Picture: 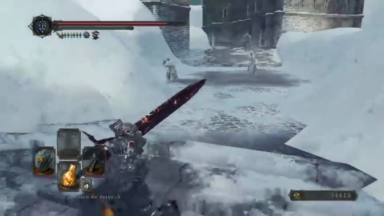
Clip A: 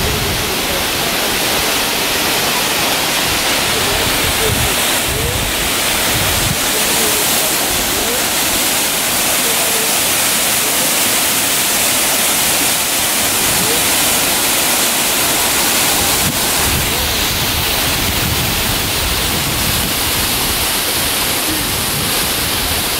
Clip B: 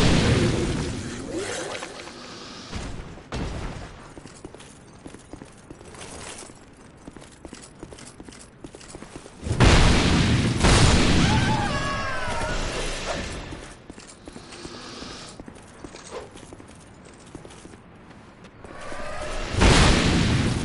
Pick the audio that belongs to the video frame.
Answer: B